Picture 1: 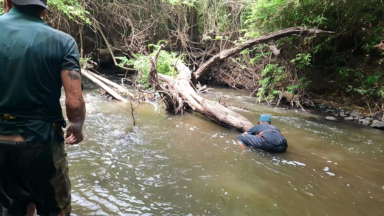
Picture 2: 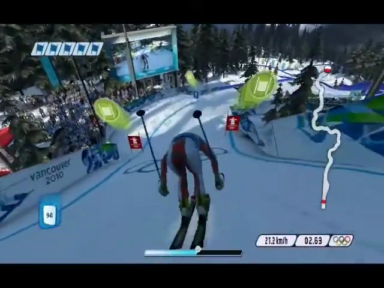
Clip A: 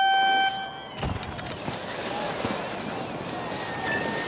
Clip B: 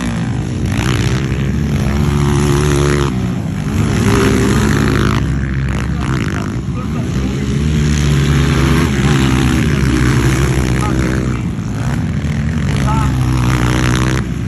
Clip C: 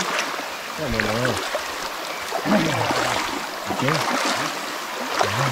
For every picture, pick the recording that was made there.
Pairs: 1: C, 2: A